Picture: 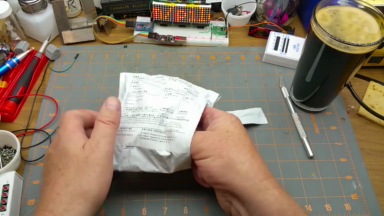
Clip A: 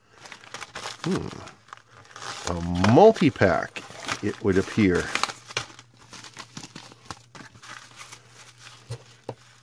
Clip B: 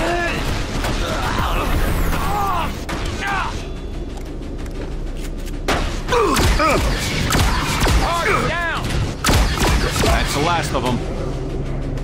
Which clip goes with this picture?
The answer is A